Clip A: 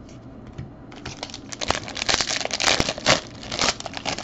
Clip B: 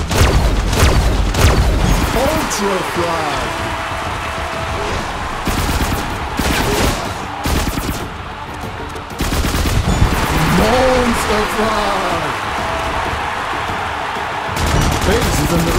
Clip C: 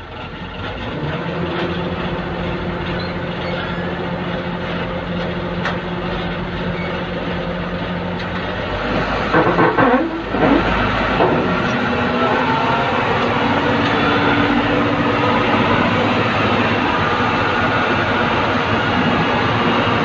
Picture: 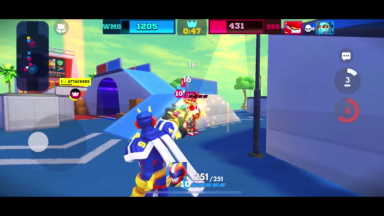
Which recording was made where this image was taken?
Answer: B